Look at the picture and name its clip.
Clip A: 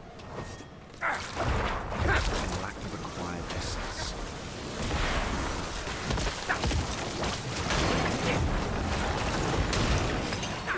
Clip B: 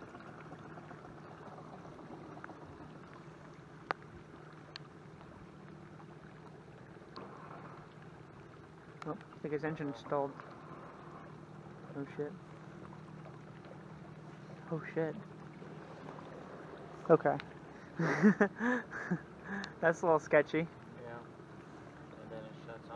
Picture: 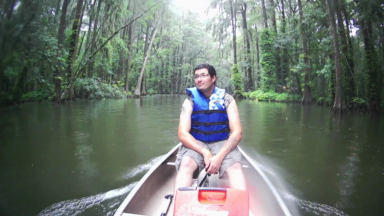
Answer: B